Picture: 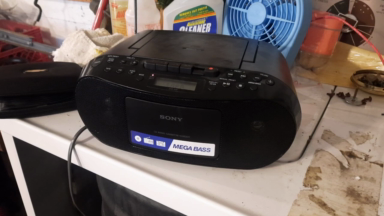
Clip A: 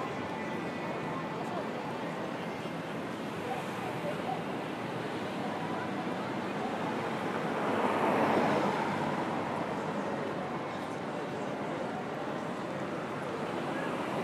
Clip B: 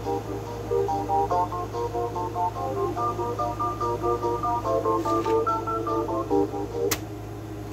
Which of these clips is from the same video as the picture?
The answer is B